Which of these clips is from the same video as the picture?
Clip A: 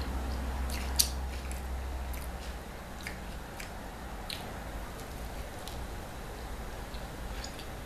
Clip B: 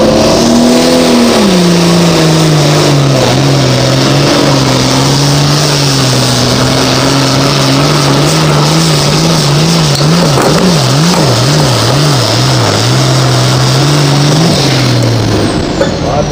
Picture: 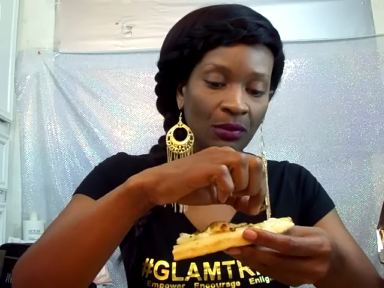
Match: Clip A